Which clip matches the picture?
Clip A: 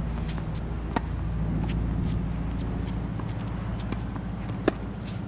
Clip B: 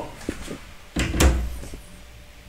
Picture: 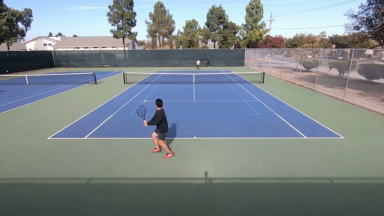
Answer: A